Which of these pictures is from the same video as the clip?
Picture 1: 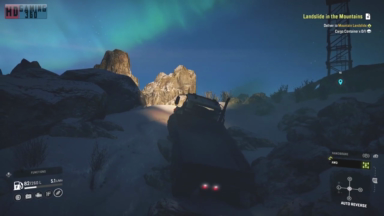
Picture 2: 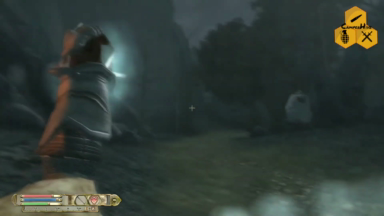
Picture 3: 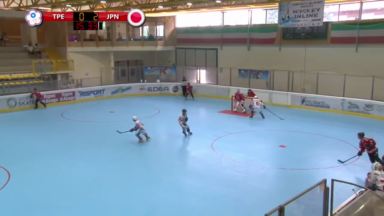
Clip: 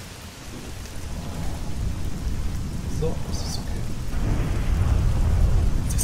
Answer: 2